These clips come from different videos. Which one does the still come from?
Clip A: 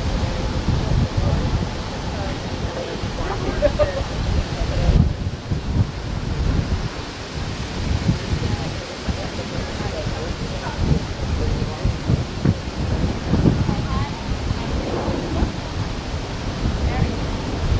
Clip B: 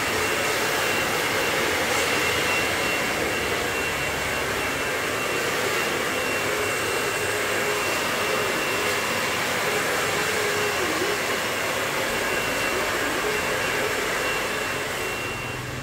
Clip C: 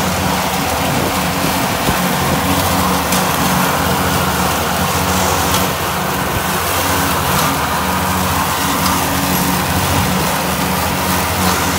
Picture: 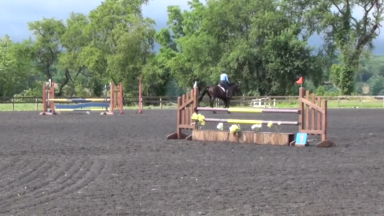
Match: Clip A